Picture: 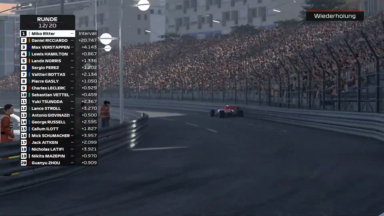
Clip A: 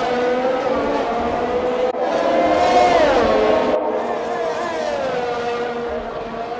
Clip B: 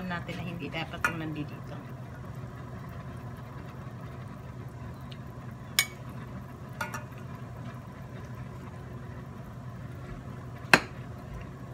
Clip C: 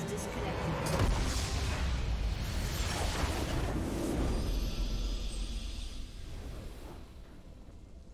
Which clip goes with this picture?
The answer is A